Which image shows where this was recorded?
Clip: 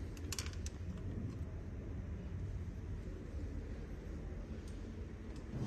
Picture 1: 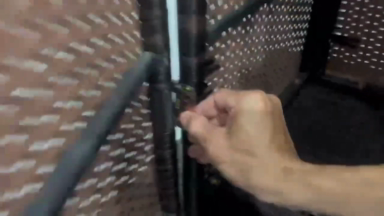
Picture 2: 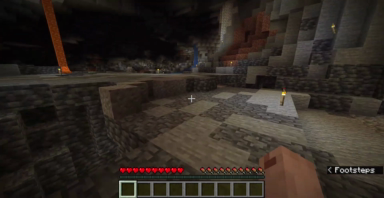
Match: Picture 1